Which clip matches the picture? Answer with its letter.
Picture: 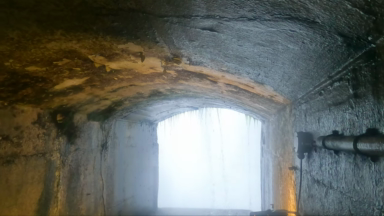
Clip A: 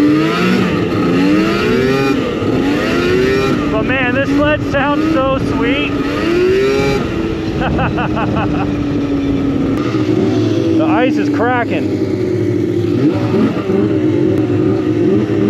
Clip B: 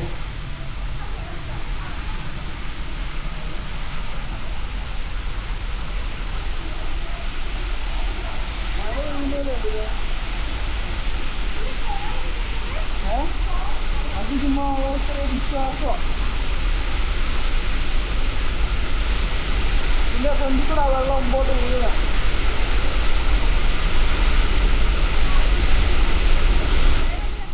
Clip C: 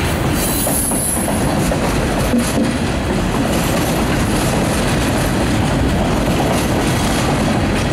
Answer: B